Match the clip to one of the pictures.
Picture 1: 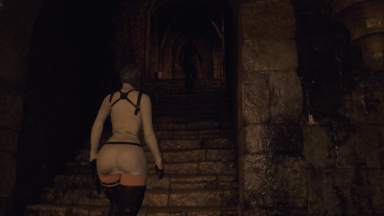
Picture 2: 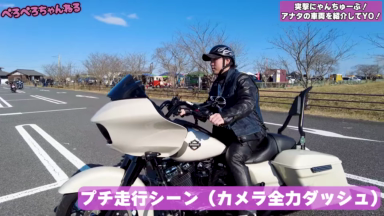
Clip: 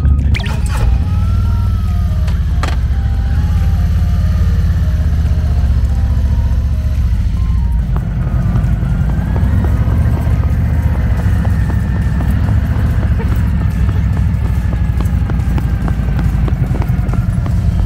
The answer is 2